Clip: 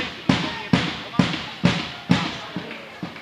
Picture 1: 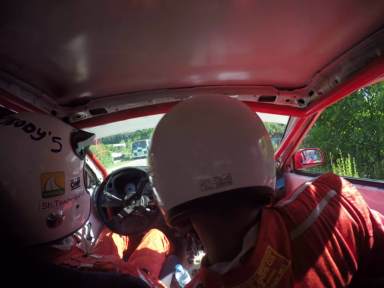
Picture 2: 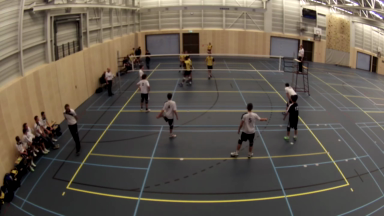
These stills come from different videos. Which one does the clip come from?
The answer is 2